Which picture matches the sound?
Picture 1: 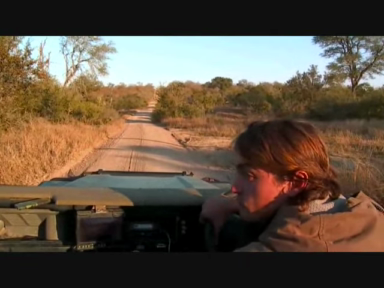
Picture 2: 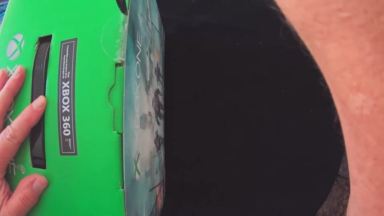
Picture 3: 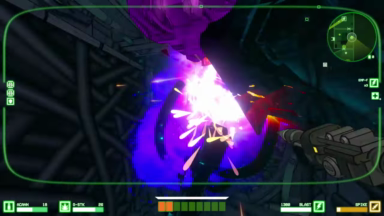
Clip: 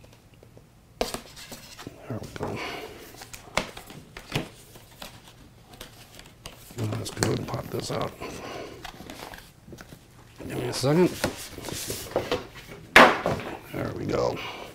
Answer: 2